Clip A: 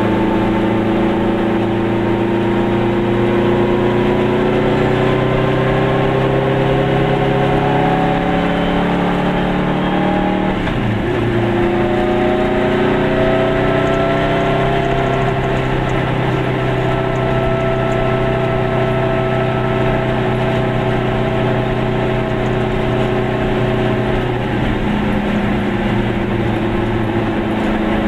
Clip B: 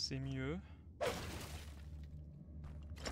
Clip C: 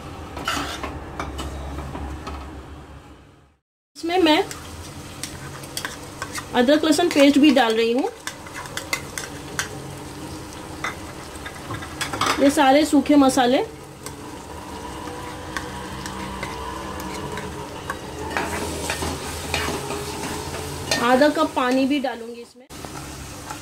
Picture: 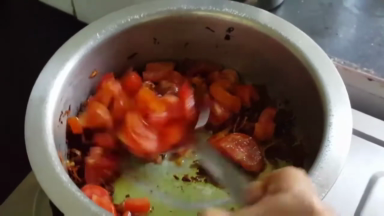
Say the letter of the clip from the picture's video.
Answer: C